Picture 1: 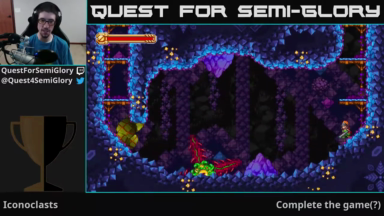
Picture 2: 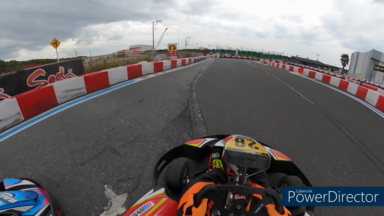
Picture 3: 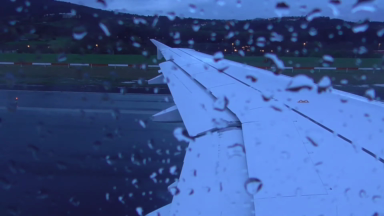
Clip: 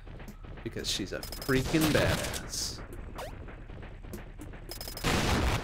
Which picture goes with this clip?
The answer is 1